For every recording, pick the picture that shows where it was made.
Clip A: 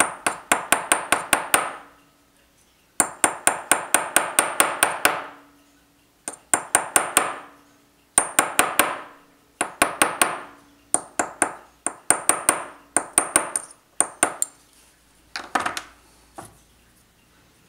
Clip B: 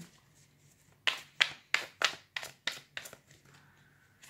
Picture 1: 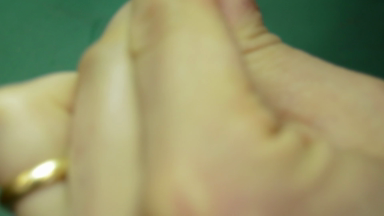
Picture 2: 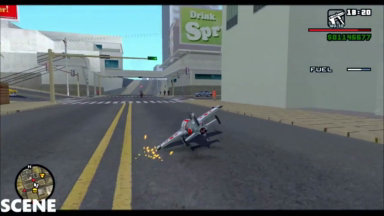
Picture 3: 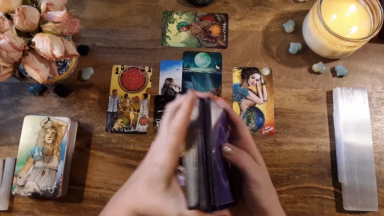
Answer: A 1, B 3